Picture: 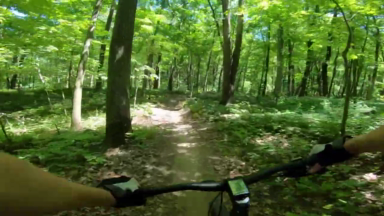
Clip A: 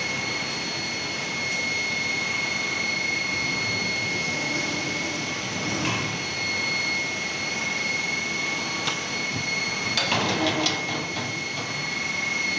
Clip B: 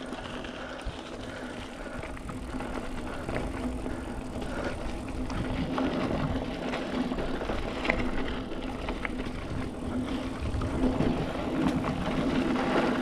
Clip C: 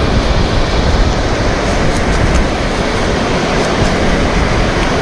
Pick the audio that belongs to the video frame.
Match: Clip B